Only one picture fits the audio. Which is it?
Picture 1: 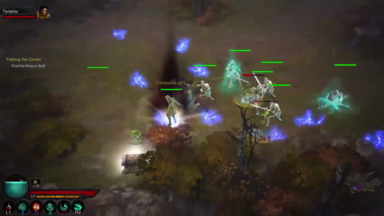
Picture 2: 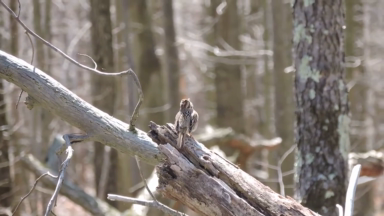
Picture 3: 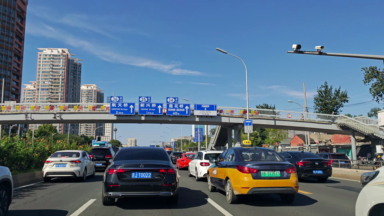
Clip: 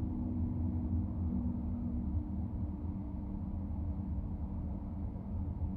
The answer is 3